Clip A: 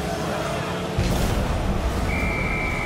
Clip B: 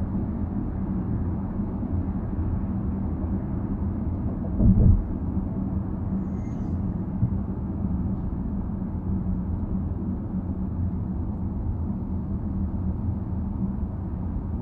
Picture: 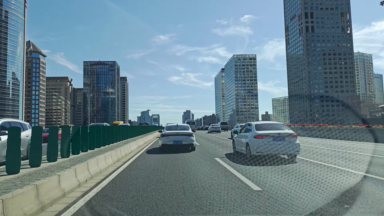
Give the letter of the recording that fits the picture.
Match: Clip B